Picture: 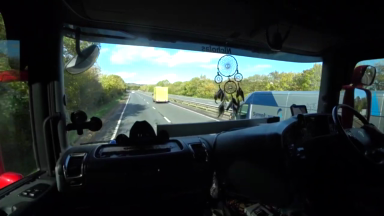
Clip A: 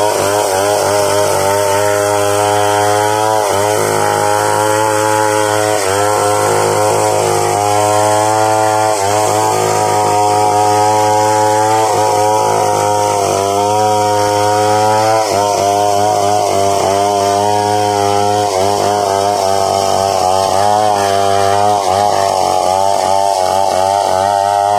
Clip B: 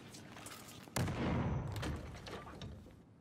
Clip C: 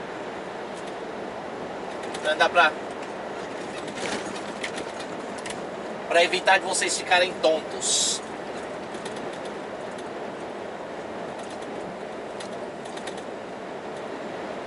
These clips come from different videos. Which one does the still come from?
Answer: C